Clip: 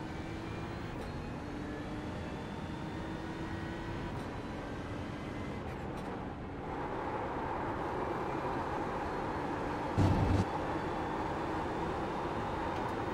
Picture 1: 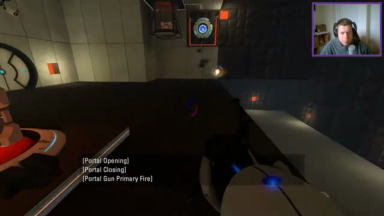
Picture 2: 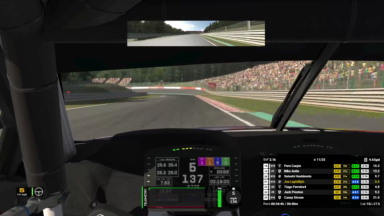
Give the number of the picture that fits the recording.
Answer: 2